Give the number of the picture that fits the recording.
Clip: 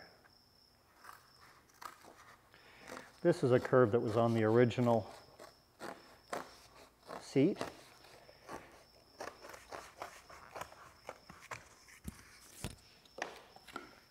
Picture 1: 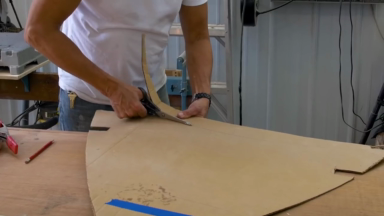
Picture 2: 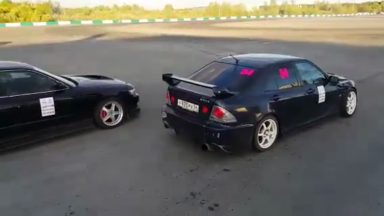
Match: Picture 1